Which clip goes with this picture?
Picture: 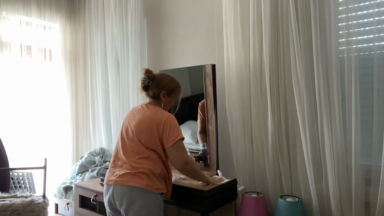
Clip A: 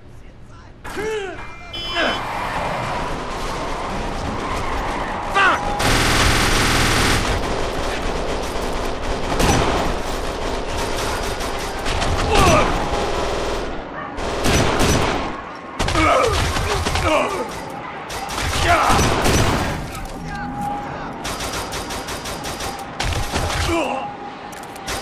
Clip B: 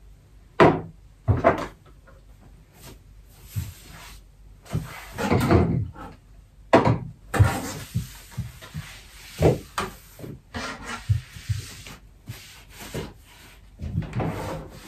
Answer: B